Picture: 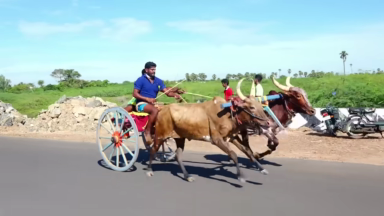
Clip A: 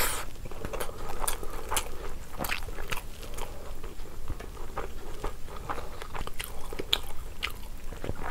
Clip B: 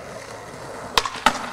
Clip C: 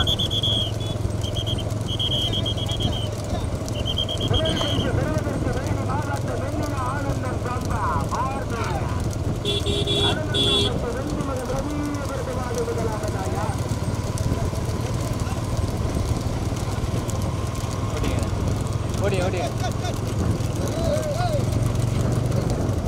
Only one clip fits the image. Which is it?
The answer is C